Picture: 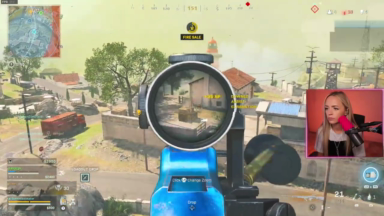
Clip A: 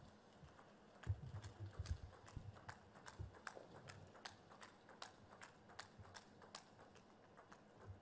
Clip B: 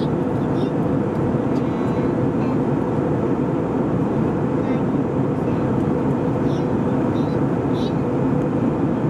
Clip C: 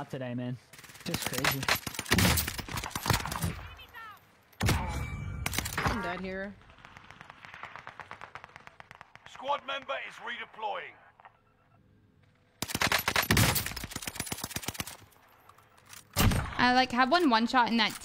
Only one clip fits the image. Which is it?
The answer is C